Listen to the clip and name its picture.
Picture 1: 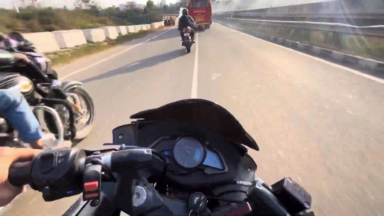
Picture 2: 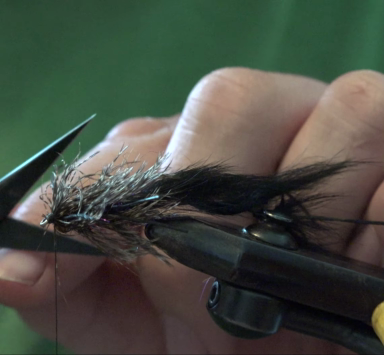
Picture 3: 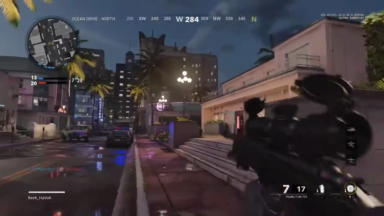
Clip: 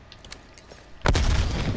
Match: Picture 3